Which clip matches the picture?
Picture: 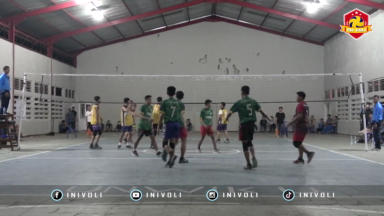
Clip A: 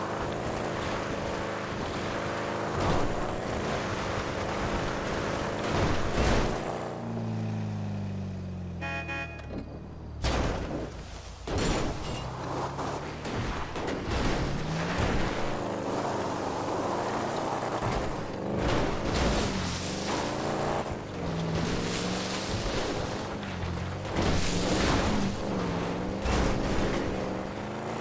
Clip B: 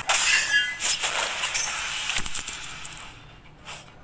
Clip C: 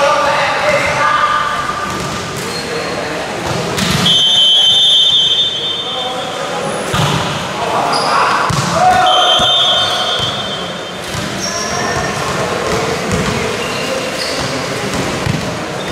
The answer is C